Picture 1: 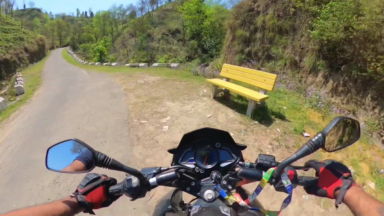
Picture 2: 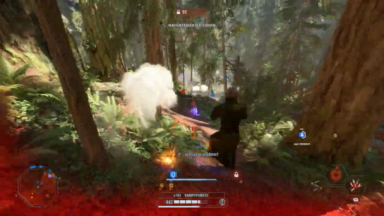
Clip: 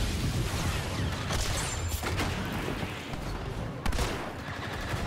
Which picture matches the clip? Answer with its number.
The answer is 2